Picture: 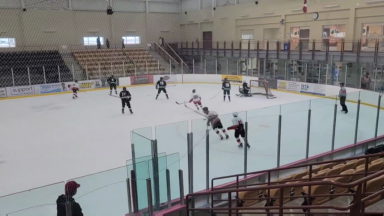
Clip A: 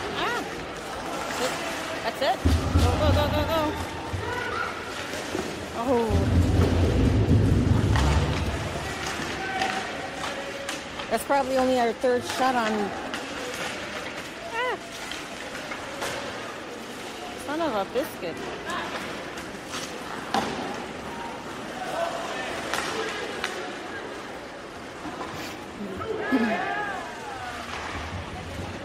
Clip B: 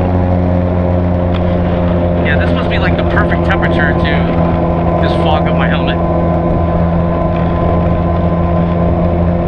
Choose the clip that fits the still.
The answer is A